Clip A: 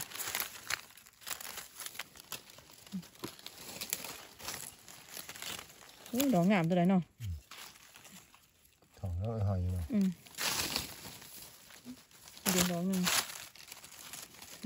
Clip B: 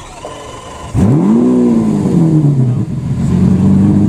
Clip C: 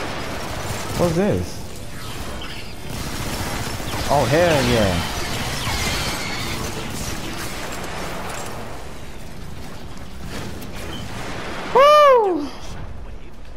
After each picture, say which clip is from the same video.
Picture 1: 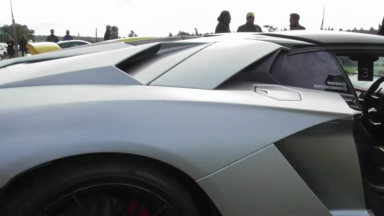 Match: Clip B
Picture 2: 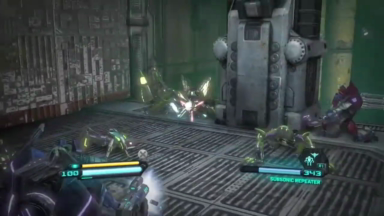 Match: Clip C